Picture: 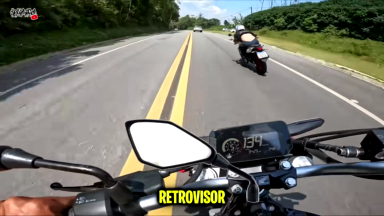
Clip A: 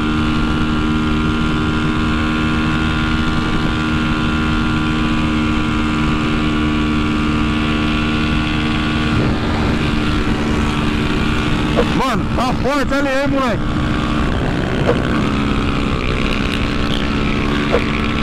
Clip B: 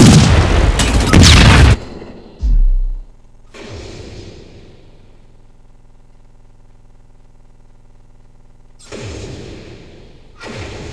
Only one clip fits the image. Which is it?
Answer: A